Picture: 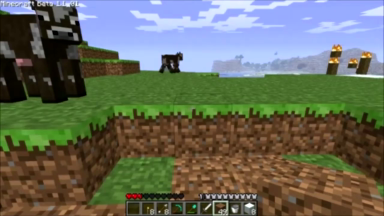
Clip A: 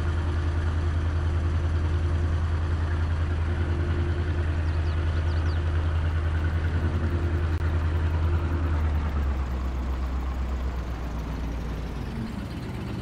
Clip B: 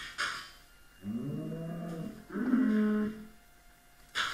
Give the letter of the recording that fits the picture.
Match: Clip B